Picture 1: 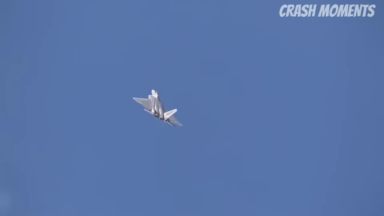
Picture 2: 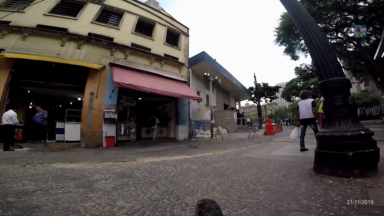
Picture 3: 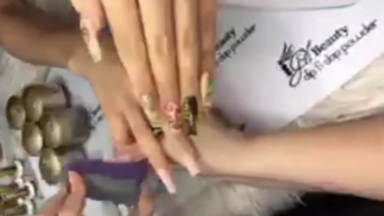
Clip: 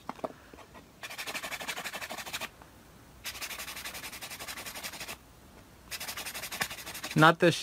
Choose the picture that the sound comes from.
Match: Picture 3